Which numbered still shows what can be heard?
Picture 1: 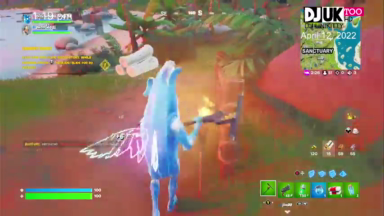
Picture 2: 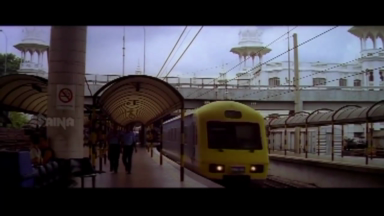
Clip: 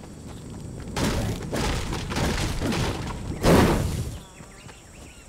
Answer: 1